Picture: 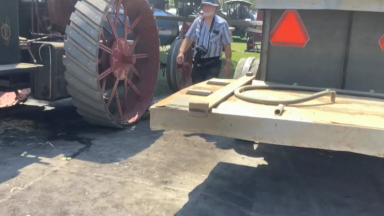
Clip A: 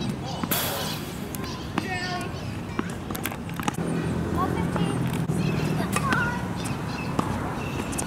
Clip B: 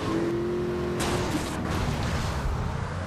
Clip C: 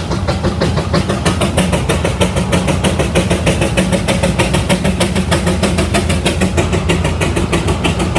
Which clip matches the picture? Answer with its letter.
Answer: C